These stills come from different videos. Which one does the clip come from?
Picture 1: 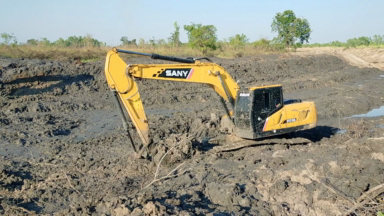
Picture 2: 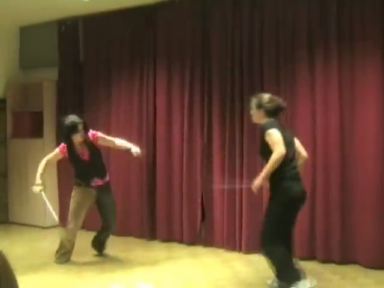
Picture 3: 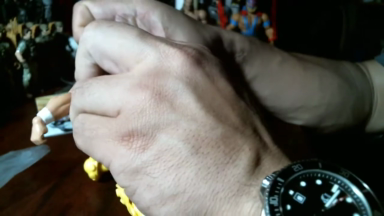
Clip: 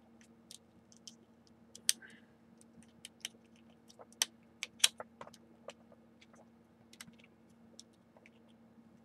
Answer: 3